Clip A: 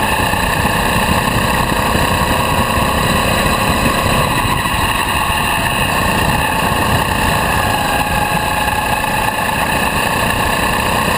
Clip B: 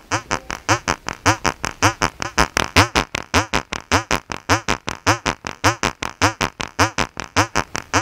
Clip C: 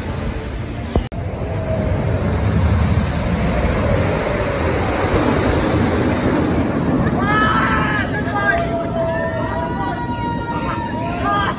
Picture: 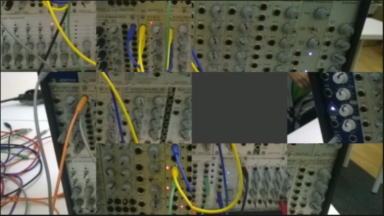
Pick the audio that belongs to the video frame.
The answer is B